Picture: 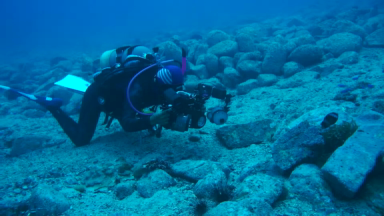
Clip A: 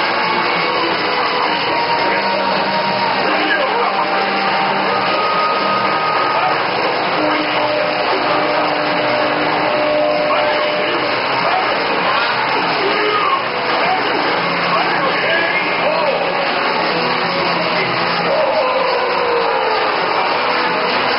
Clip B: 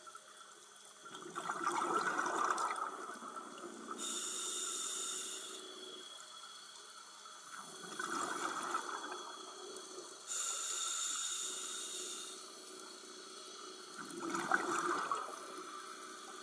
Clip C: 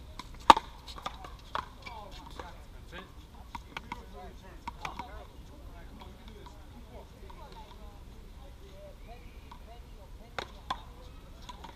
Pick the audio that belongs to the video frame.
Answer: B